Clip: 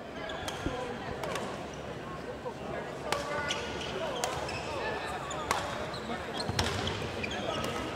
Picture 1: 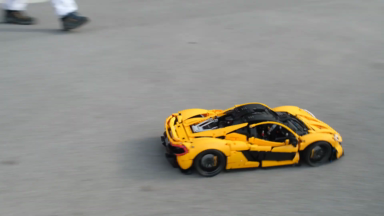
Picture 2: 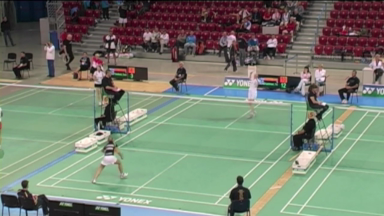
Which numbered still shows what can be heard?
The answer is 2